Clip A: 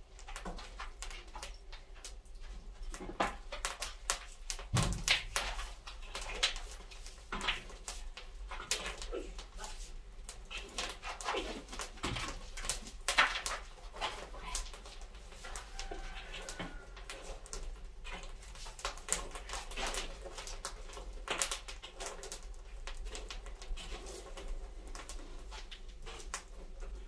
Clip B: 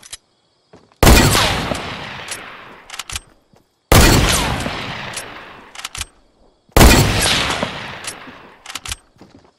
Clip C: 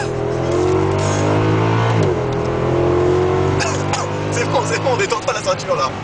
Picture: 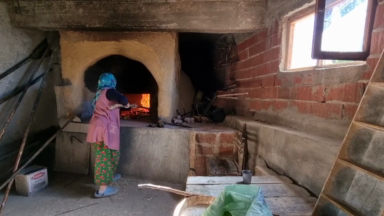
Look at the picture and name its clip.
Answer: A